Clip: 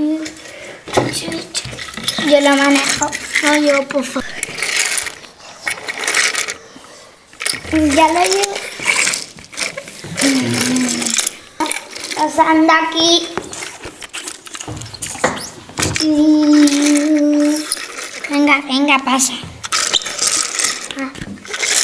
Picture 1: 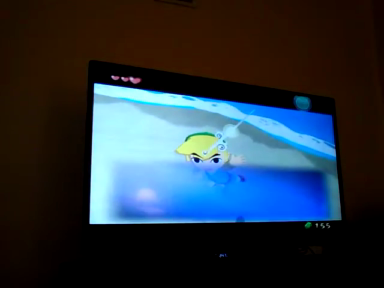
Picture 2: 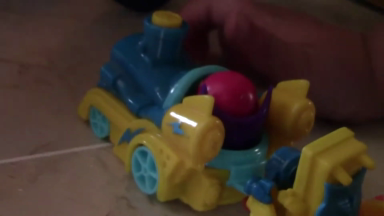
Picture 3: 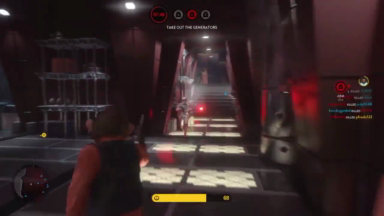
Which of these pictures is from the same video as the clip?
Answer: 2